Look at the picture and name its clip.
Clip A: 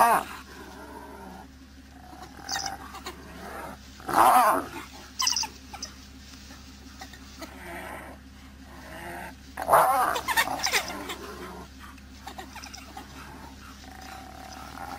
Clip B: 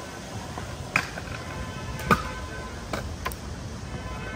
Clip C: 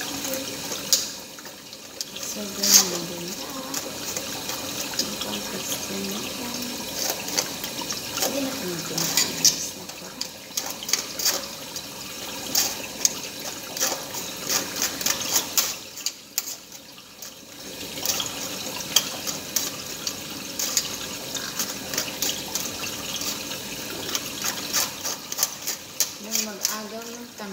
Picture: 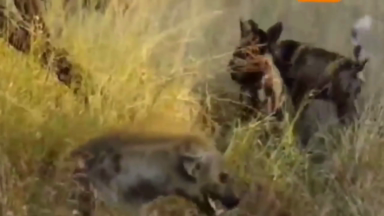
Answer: A